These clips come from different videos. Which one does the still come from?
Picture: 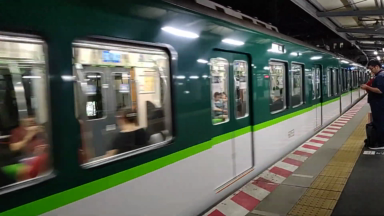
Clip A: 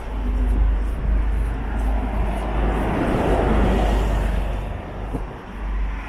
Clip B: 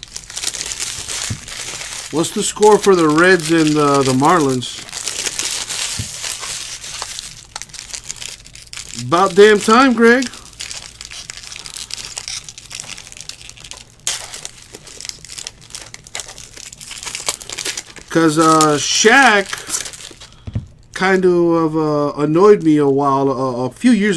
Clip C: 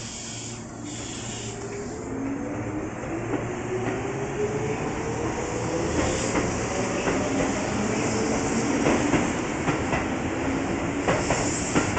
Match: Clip C